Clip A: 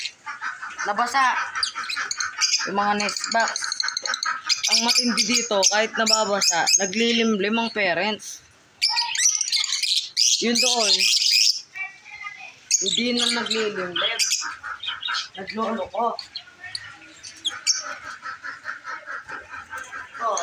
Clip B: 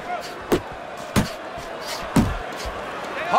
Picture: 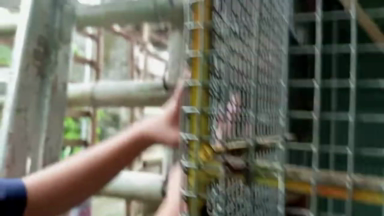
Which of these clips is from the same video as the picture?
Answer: A